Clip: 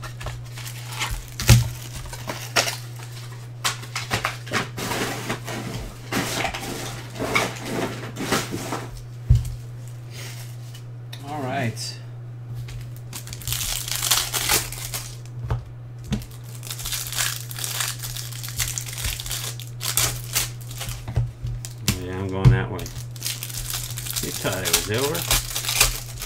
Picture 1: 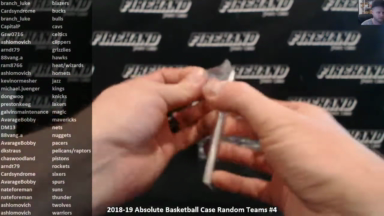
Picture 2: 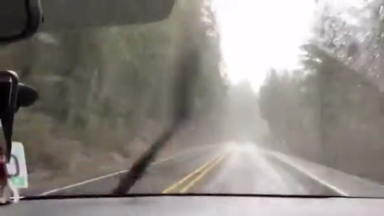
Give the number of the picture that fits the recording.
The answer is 1